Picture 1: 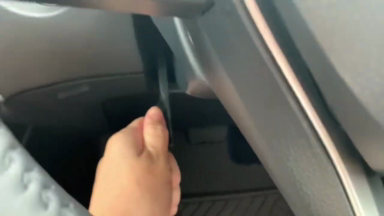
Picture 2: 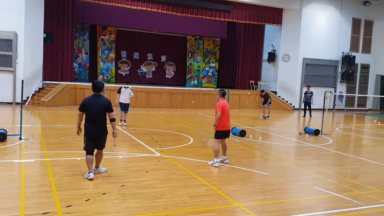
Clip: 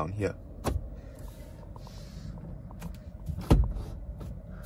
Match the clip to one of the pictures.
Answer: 1